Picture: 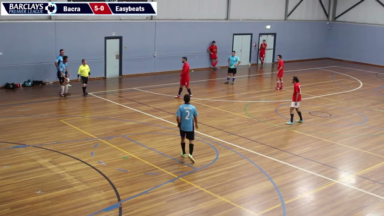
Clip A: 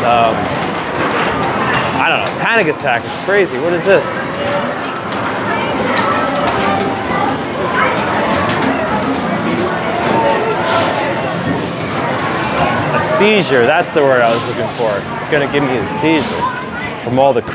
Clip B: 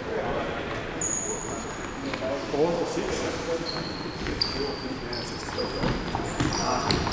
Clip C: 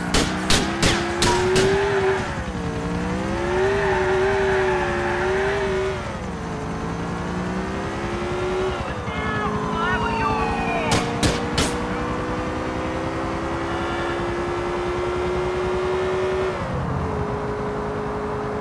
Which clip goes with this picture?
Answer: B